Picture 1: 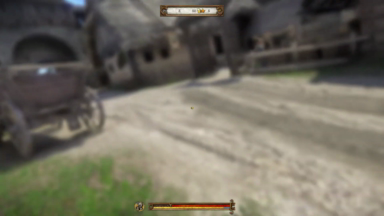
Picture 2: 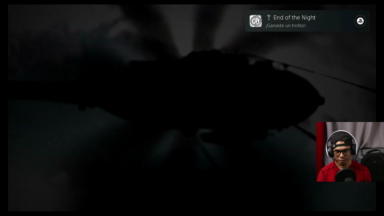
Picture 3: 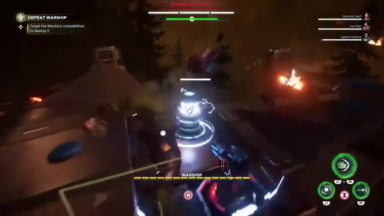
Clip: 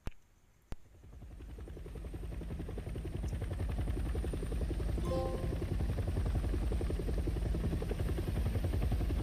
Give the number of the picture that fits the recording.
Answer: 2